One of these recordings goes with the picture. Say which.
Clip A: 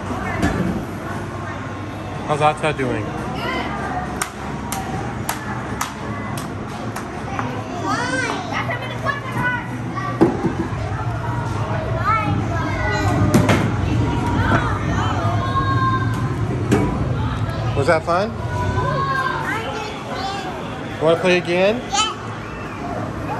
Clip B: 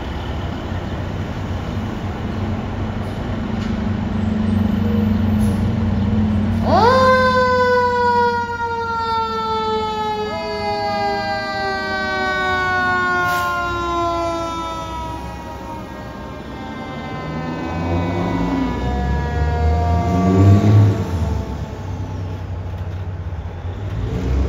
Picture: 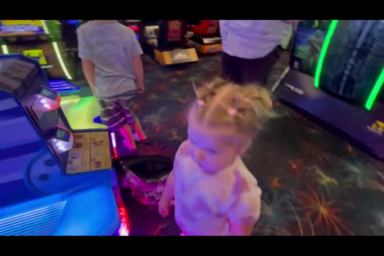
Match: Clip A